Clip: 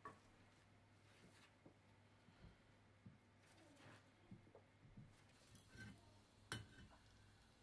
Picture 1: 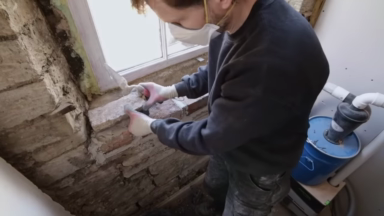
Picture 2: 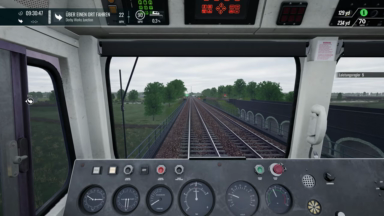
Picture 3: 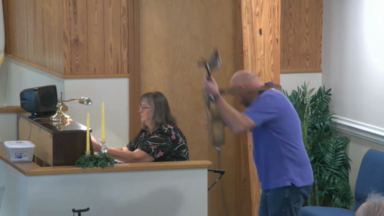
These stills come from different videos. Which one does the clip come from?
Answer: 1